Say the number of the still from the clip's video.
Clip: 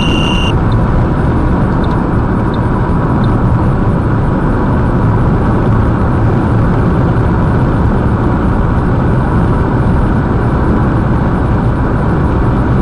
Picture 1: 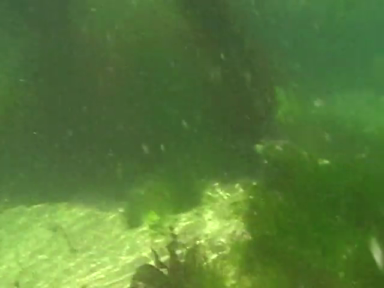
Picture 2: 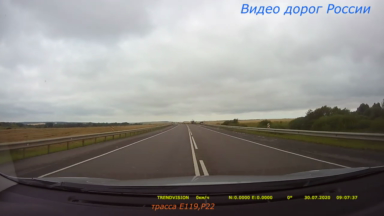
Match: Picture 2